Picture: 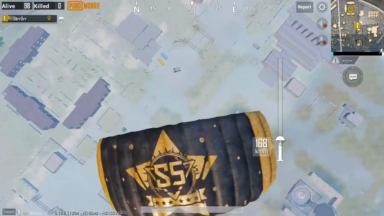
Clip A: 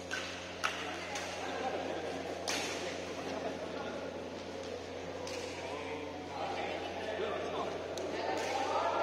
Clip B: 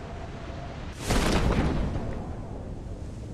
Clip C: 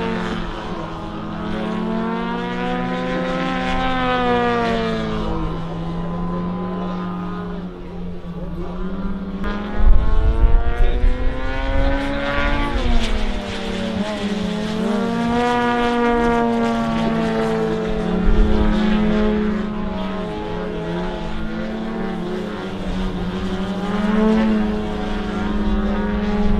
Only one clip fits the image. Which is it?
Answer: B